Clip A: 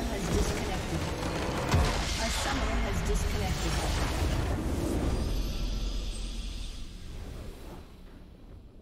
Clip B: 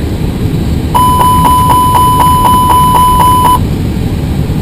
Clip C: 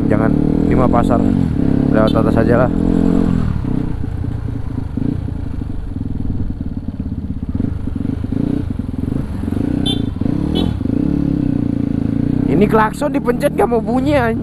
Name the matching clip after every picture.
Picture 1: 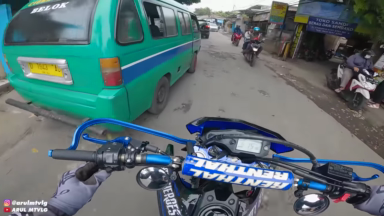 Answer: C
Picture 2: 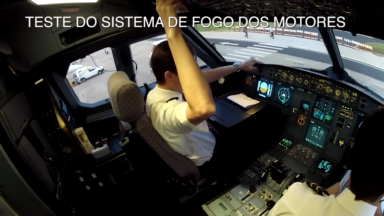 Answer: B